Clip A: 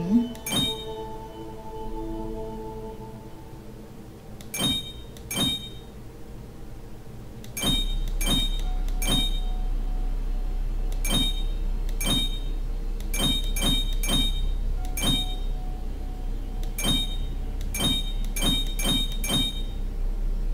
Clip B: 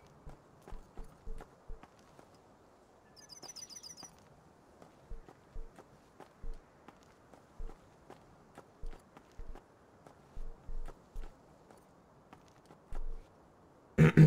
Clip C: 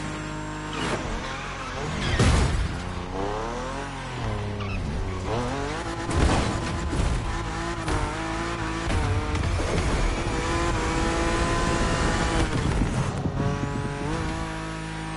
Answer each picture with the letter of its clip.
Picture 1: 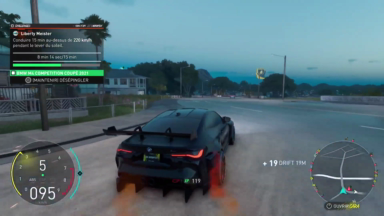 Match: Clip C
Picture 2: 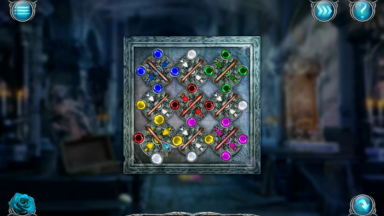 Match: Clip A